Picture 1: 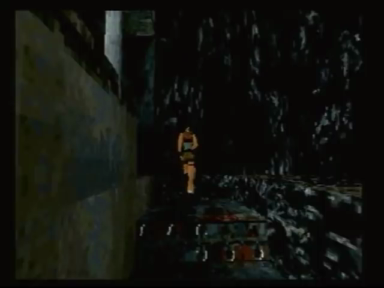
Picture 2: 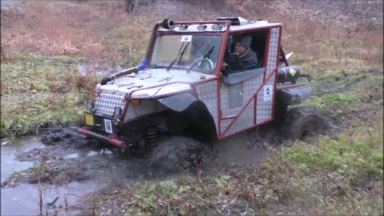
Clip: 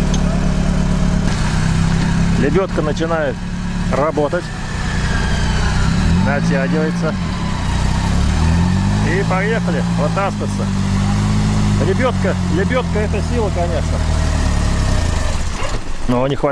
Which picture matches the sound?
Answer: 2